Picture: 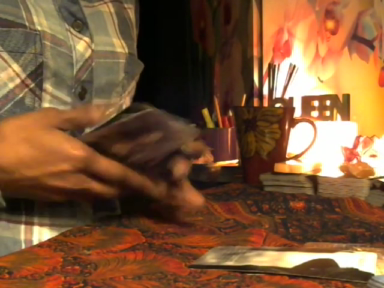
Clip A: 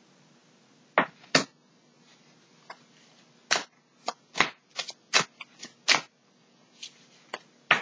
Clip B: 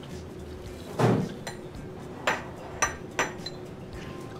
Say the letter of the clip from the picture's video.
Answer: A